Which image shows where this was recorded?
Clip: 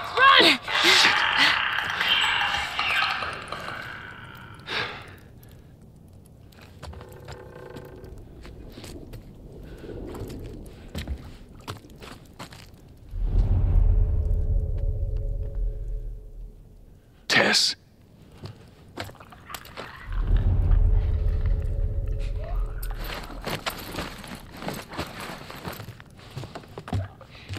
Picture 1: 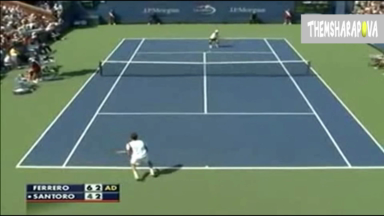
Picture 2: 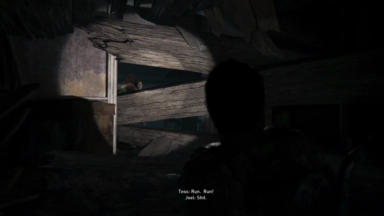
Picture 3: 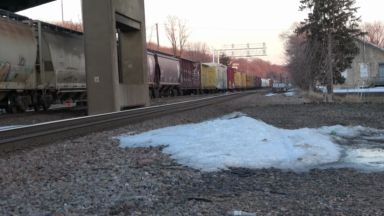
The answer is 2